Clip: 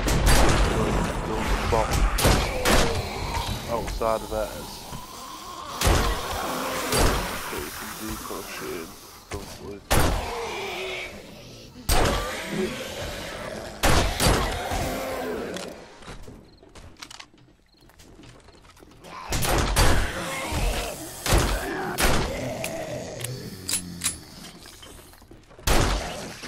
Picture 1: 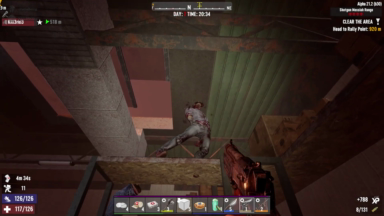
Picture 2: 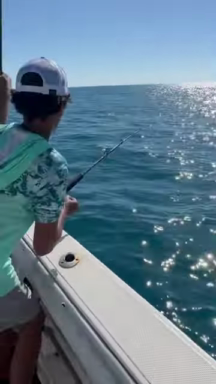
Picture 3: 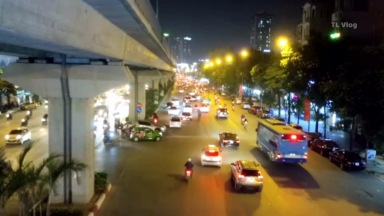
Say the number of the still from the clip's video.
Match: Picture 1